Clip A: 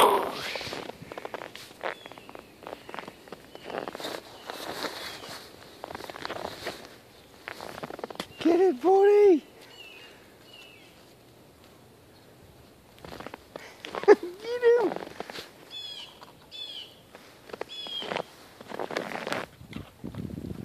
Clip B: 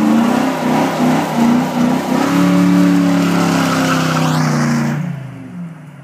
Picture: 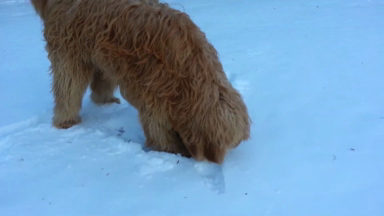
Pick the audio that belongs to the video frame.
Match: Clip A